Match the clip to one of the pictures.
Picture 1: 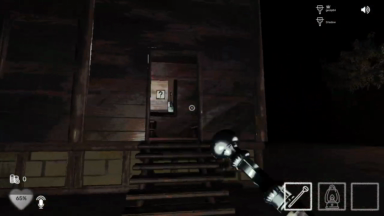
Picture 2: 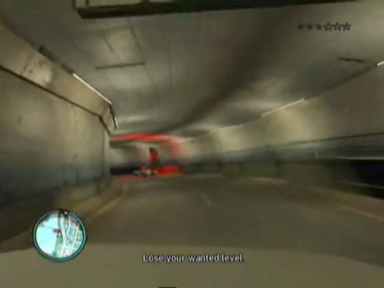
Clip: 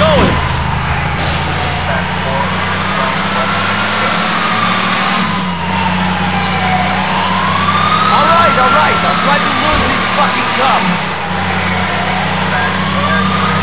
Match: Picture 2